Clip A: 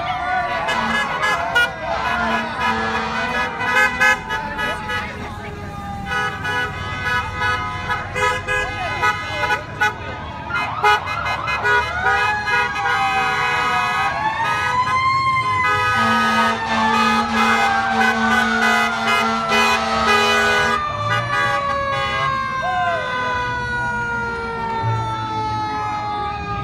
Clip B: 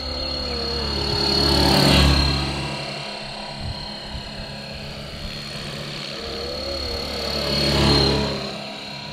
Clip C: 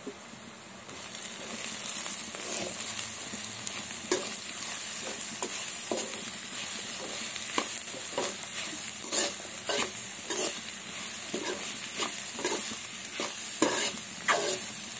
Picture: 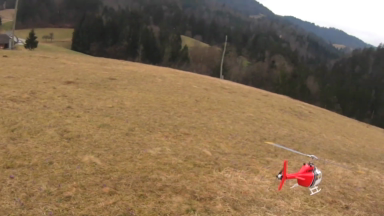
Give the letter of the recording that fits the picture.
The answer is B